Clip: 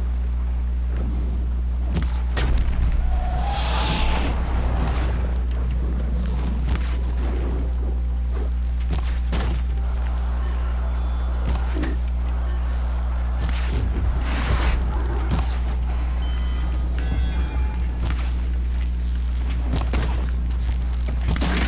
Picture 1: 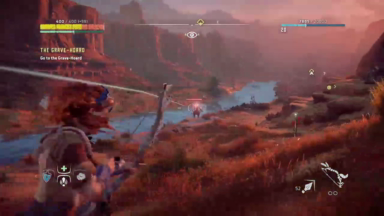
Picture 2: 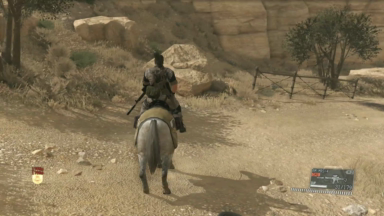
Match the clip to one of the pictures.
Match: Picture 1